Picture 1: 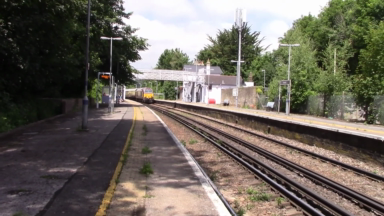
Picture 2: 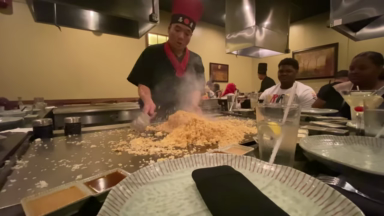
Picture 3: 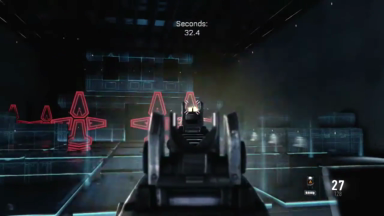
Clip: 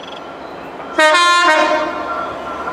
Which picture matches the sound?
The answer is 1